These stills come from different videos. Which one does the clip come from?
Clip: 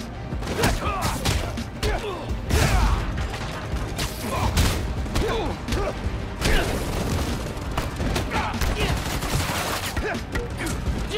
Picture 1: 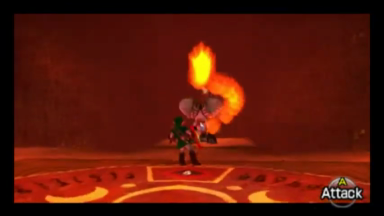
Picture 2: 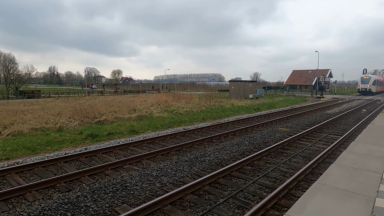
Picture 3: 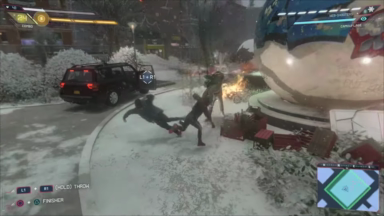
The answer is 3